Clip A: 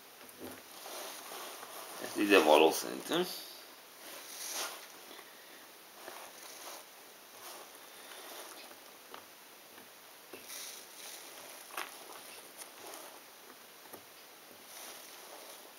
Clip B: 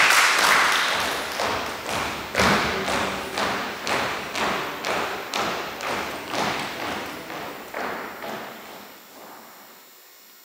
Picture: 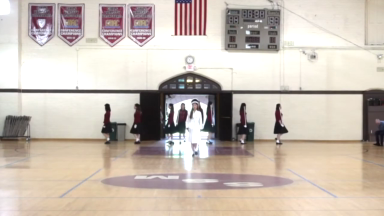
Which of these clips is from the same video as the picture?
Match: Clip B